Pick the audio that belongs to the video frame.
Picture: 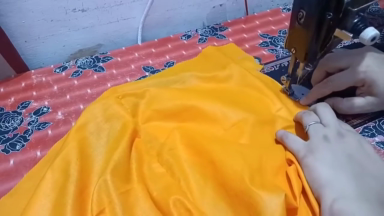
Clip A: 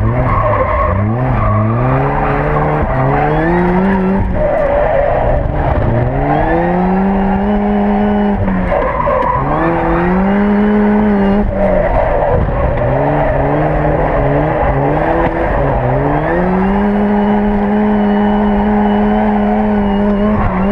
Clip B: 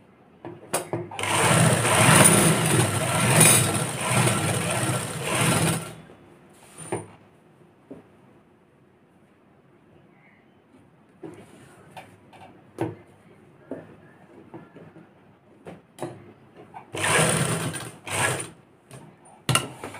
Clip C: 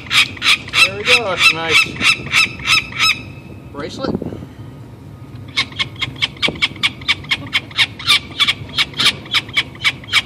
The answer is B